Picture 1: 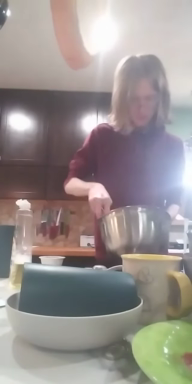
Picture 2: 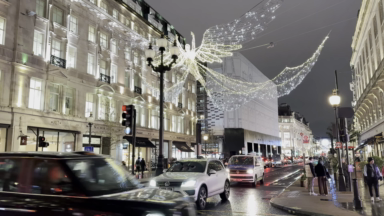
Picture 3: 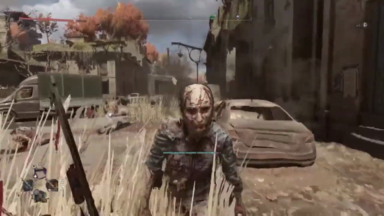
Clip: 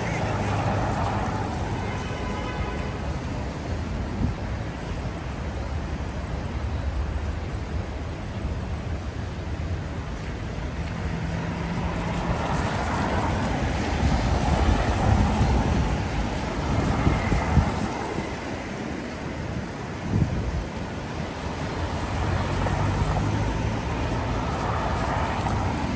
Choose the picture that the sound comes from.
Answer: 2